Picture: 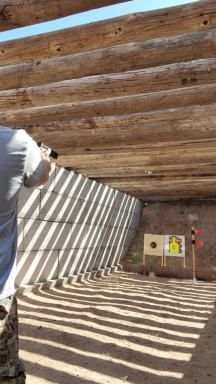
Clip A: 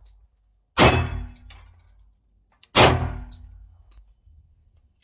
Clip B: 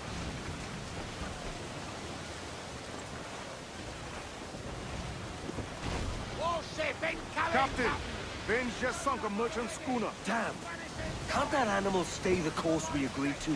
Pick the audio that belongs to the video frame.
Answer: A